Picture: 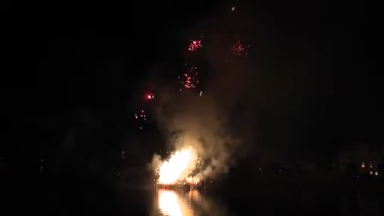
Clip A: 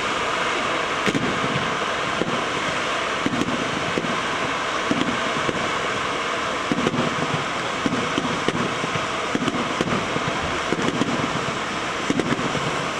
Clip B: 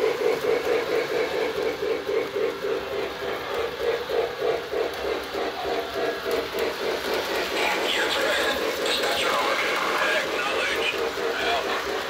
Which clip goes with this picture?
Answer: A